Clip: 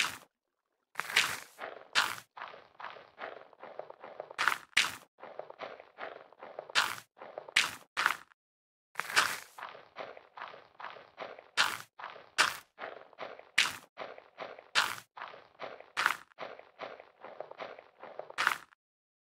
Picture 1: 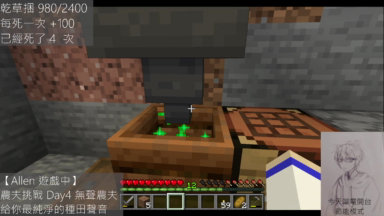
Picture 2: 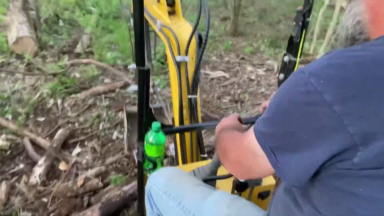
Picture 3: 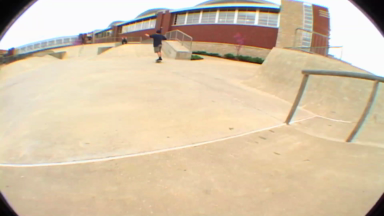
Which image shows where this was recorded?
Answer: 1